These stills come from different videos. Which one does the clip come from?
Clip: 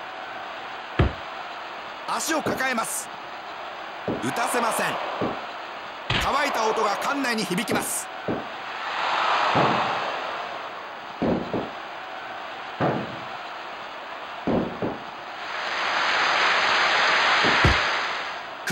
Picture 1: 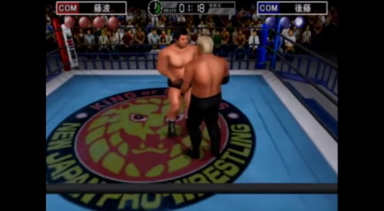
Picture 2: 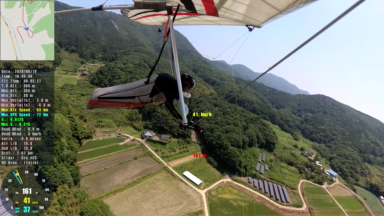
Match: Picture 1